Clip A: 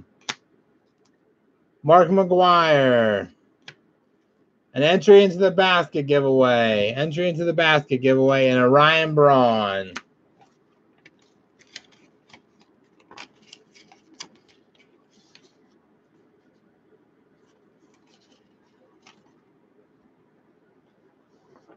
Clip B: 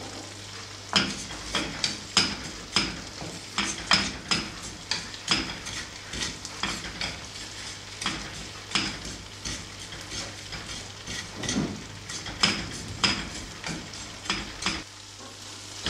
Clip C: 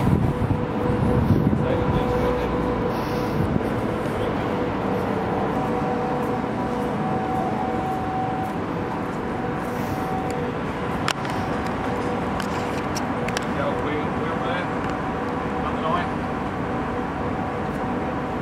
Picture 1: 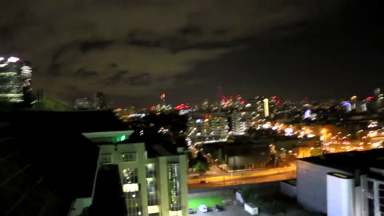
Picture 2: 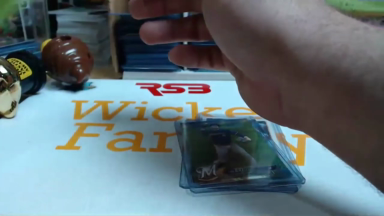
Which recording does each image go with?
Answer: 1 C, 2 A